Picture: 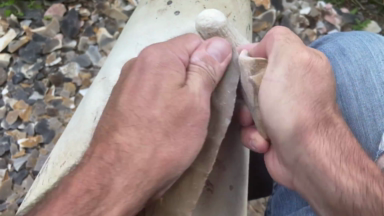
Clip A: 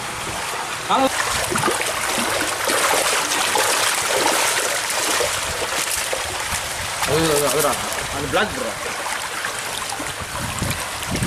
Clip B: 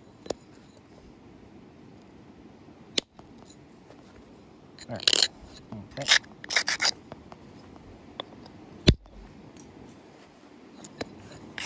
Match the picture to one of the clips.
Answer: B